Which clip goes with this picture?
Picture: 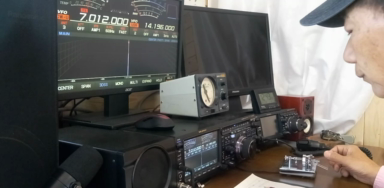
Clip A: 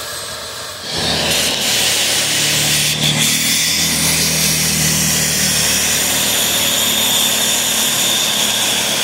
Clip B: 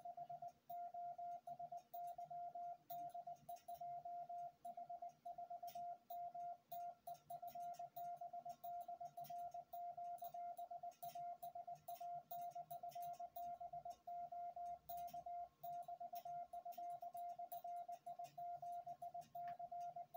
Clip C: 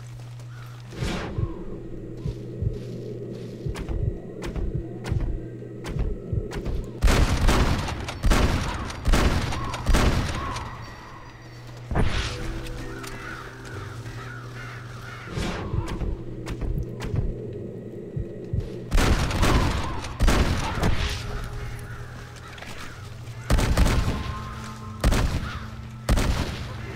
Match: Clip B